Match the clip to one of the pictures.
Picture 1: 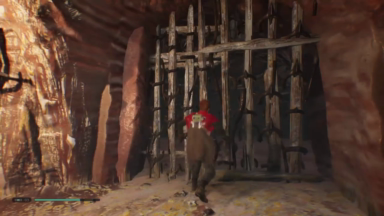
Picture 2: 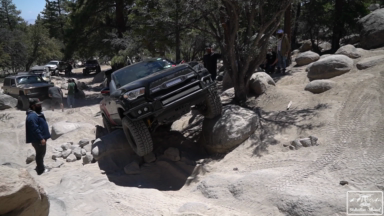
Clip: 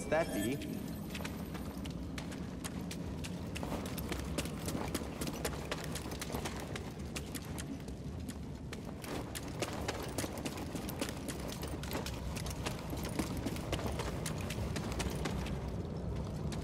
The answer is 1